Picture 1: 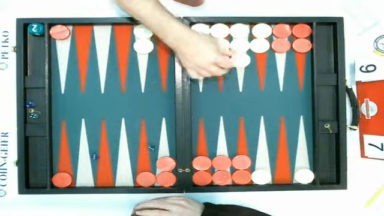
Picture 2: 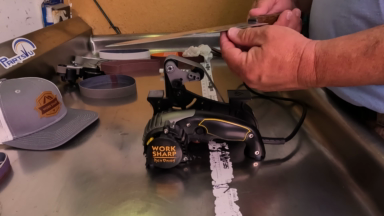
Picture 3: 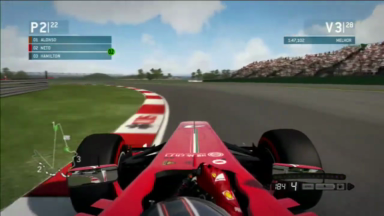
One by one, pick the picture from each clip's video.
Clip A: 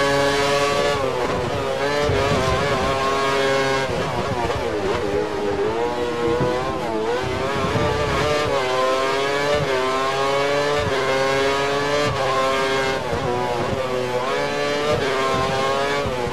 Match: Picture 3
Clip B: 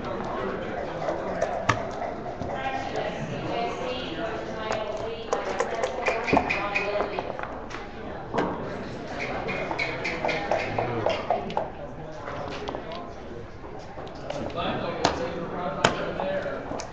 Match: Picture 1